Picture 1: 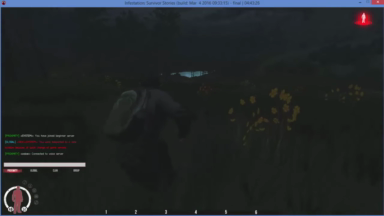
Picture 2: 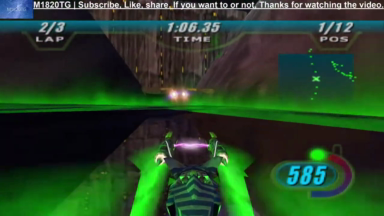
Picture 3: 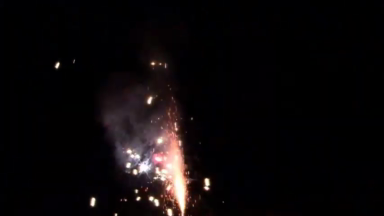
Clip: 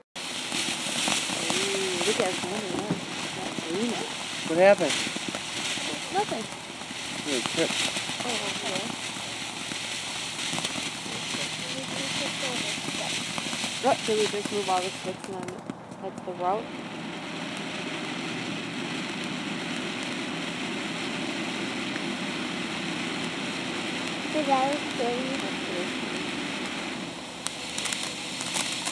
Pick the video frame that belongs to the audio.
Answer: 3